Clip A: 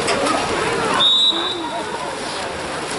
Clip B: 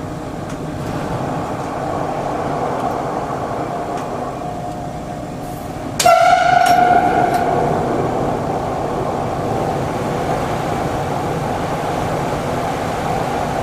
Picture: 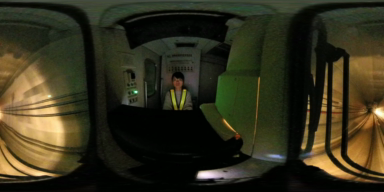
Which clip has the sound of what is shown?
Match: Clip B